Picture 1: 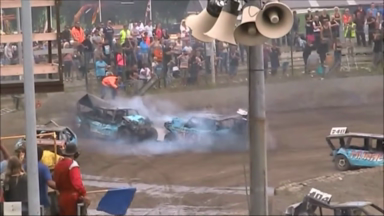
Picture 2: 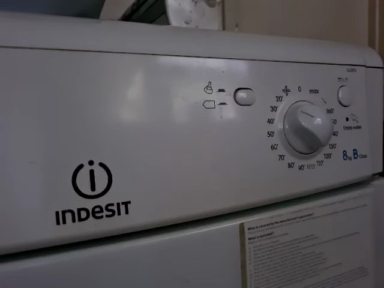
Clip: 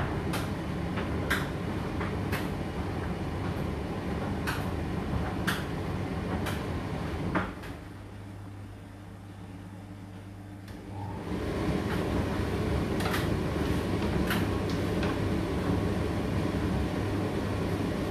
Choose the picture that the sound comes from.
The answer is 2